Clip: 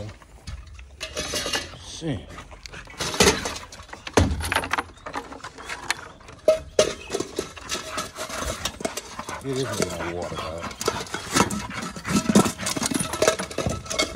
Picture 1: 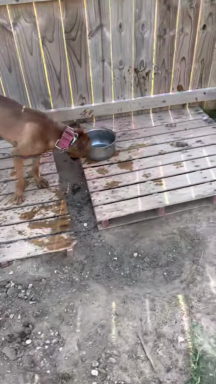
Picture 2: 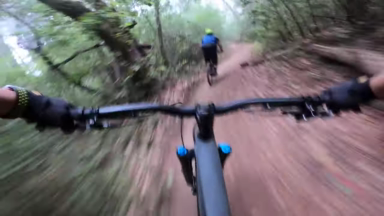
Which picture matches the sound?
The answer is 1